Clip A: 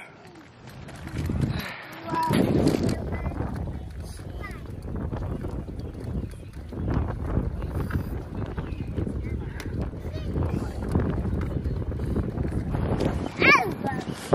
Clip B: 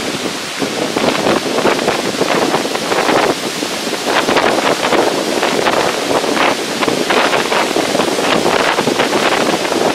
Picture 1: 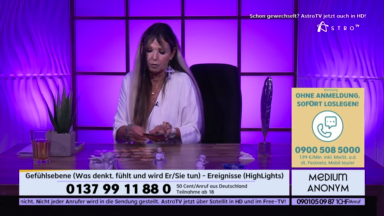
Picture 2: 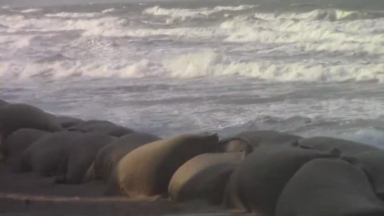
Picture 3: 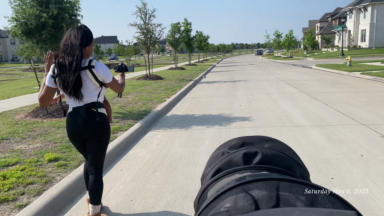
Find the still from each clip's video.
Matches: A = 3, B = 2